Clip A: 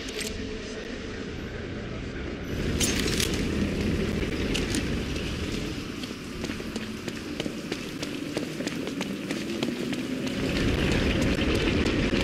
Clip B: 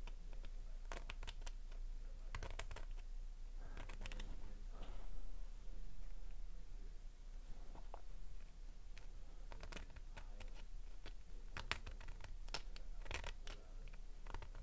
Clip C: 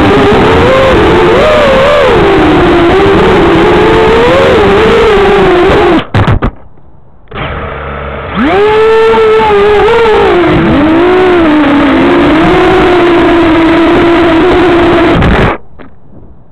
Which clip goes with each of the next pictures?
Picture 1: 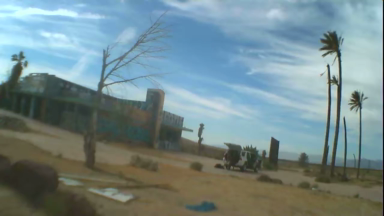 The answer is C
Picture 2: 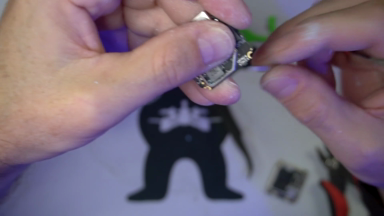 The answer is B